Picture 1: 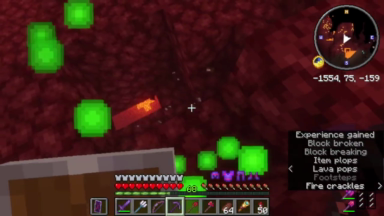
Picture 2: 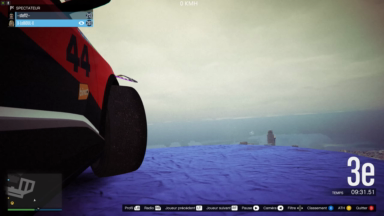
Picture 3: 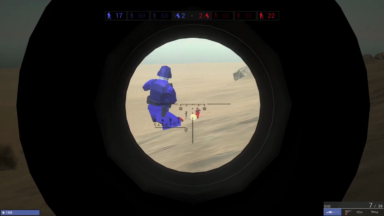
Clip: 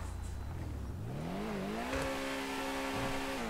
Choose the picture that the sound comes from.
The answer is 2